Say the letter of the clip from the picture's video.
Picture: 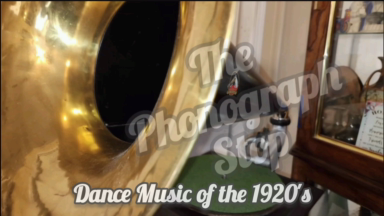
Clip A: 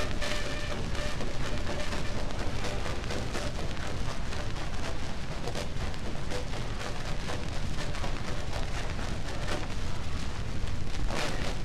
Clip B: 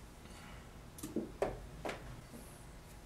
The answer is A